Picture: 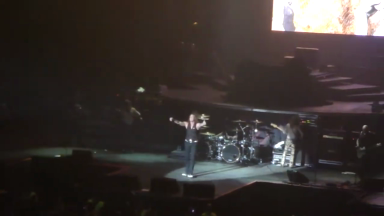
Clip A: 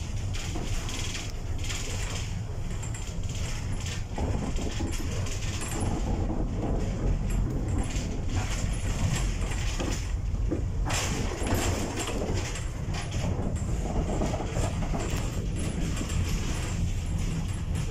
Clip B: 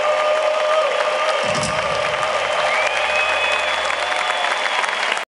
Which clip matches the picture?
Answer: B